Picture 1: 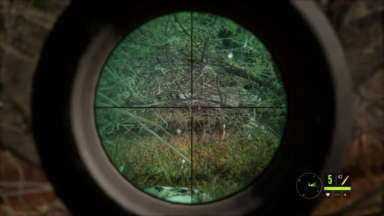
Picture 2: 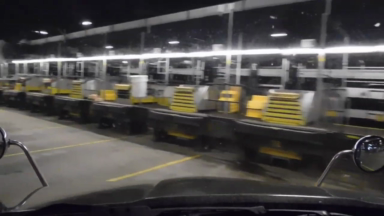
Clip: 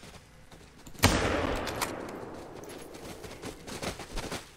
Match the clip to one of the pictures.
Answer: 1